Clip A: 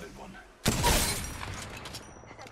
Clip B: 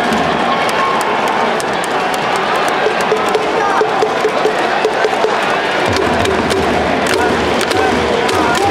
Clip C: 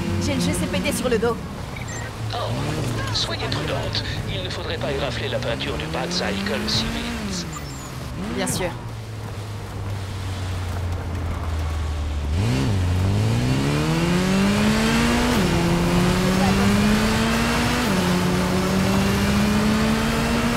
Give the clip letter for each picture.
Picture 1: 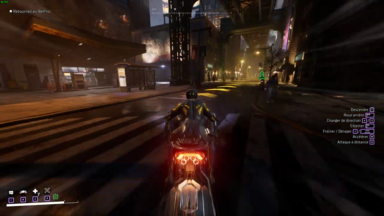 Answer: C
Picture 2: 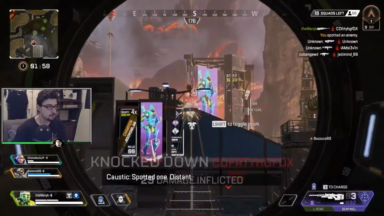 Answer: A